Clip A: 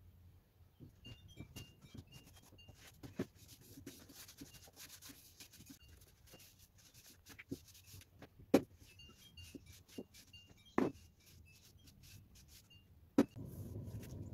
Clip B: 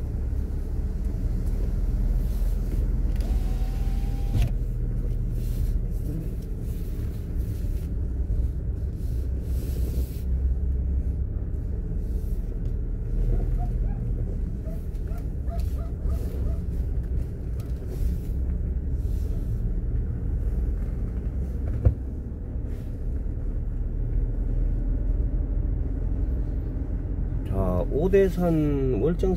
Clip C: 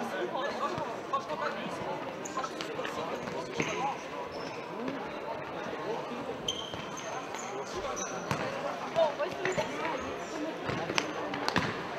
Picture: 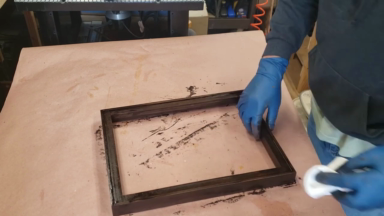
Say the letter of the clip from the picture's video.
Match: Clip A